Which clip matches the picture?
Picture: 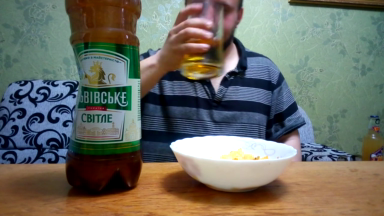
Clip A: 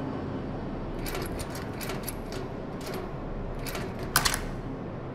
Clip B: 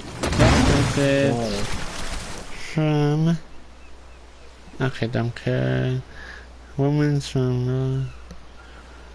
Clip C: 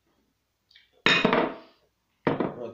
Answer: C